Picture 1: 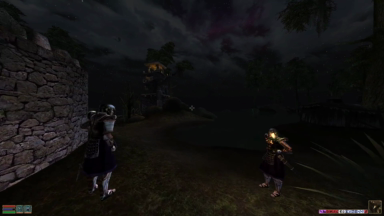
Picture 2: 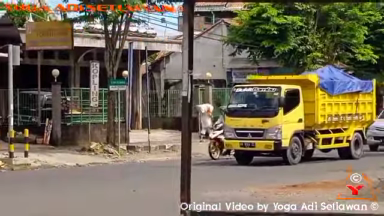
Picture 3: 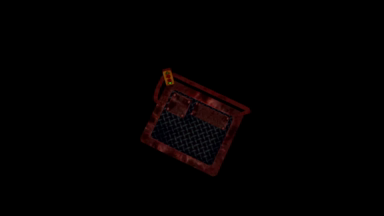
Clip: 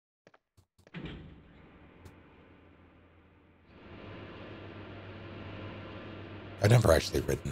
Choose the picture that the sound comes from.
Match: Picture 3